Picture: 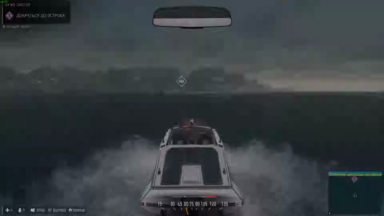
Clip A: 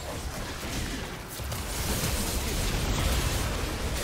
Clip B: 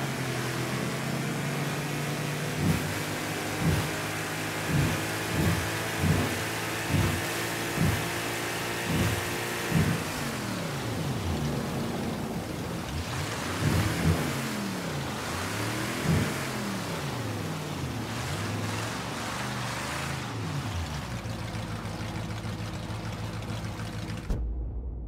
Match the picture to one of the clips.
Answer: B